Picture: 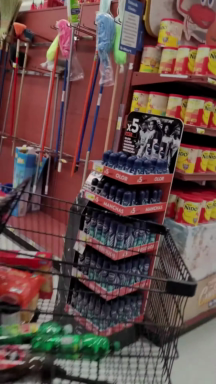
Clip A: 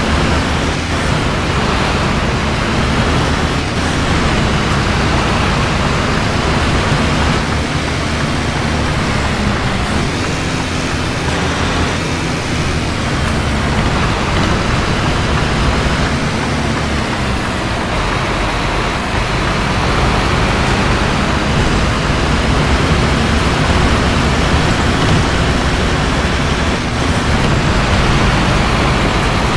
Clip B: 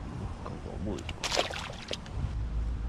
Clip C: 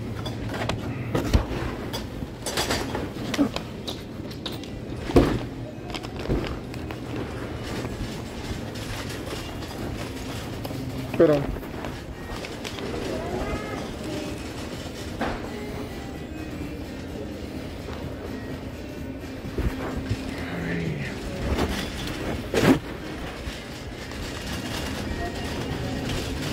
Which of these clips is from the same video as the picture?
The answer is C